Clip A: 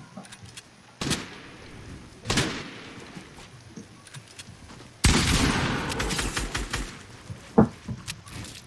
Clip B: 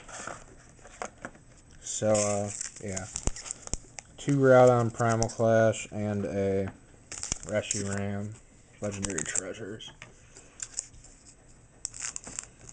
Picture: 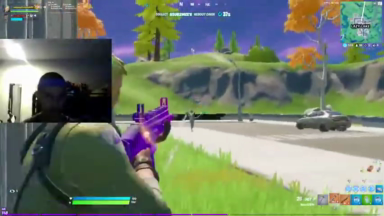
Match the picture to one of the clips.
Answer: A